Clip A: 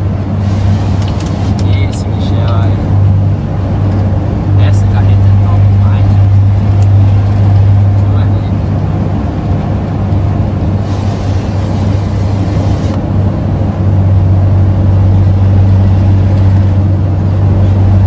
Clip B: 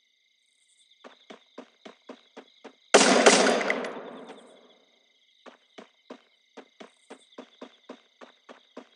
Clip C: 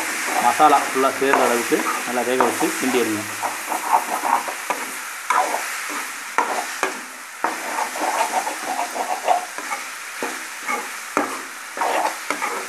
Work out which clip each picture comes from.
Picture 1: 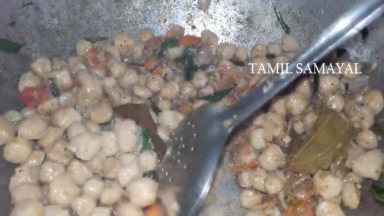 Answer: C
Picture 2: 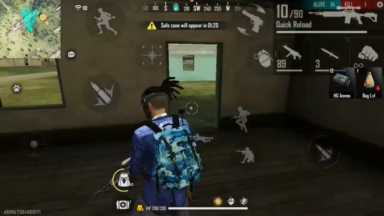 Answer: B